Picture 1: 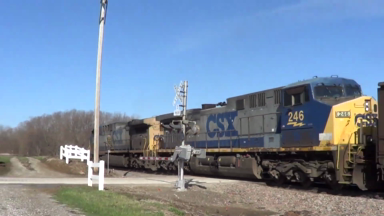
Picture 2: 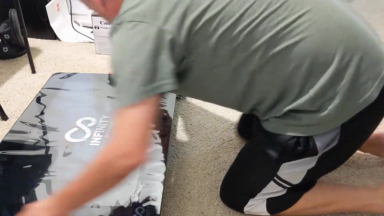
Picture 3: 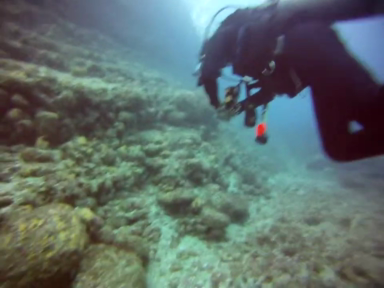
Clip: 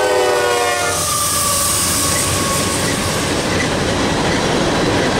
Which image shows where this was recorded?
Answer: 1